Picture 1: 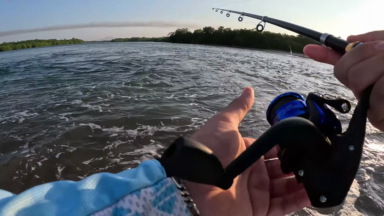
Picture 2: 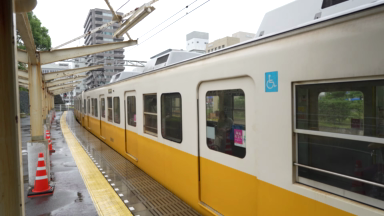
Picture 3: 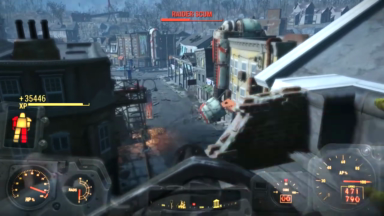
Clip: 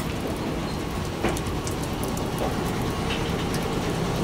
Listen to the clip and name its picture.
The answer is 2